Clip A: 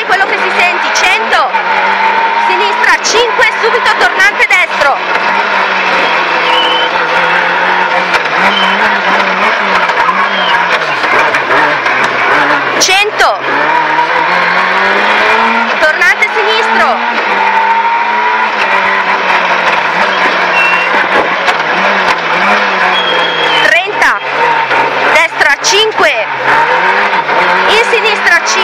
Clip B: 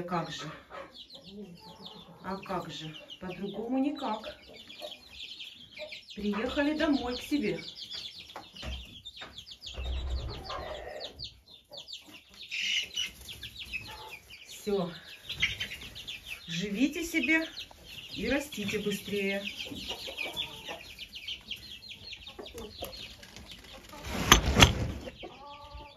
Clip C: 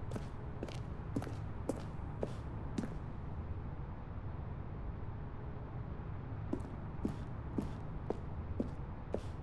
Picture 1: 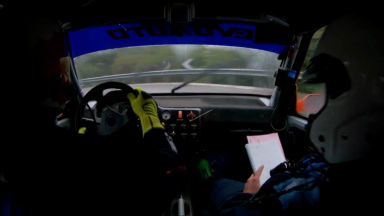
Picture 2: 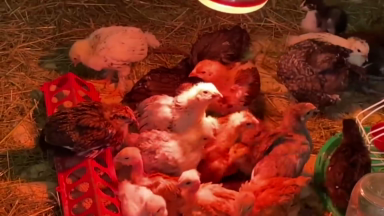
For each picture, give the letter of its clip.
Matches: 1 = A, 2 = B